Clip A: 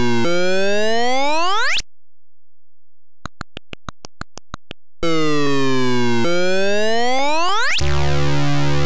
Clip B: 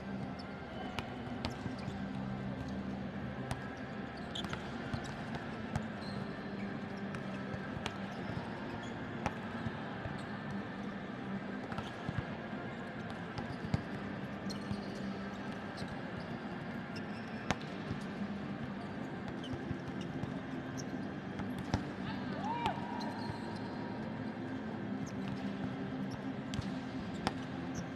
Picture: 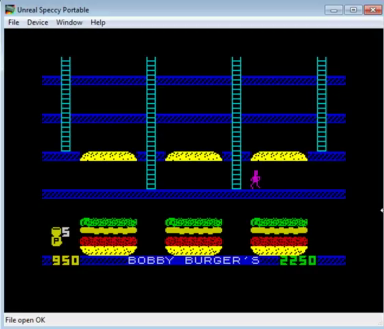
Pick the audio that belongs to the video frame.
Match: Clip A